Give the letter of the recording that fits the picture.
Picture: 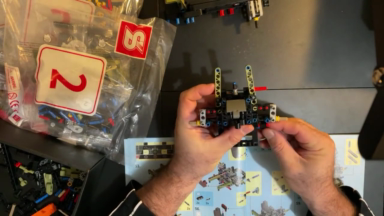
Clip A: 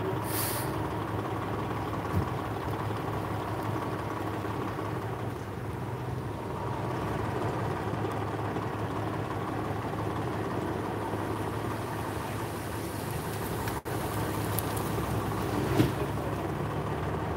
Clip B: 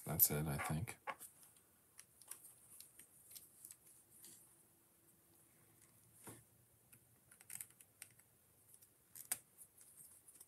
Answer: B